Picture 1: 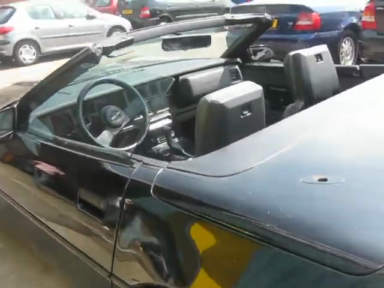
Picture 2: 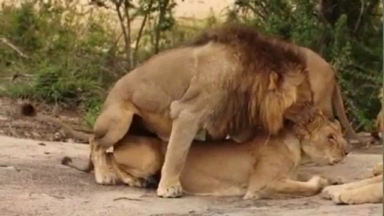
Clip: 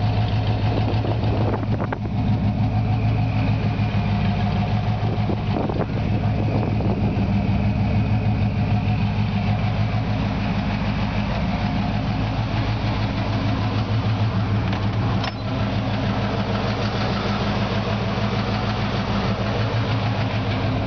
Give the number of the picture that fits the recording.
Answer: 1